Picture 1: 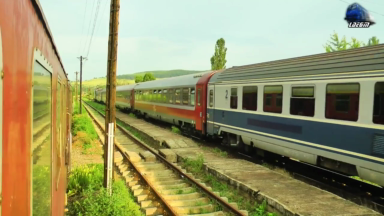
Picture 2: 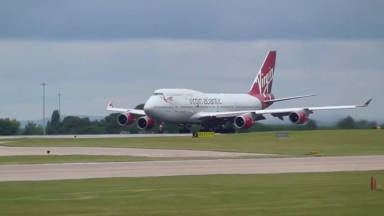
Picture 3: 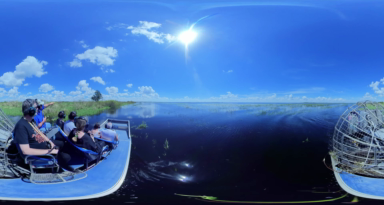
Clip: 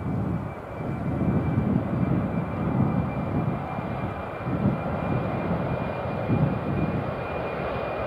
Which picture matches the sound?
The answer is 2